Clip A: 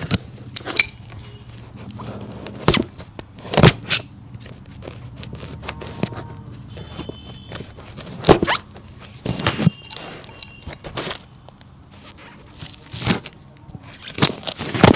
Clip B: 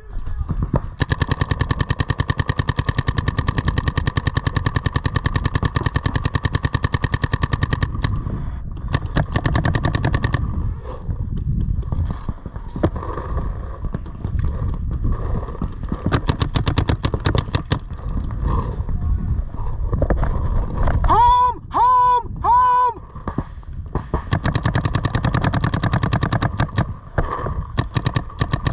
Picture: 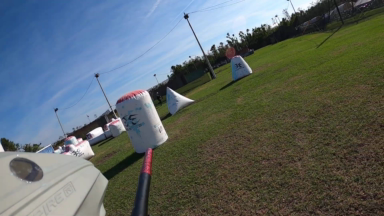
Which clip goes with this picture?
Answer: B